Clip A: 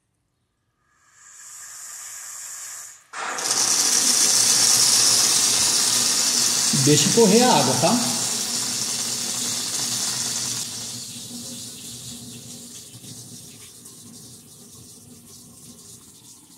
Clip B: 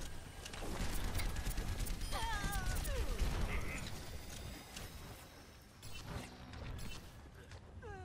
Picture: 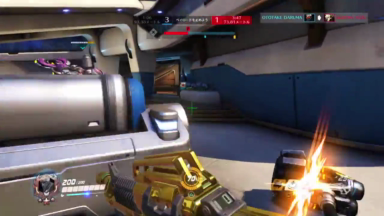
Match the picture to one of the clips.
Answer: B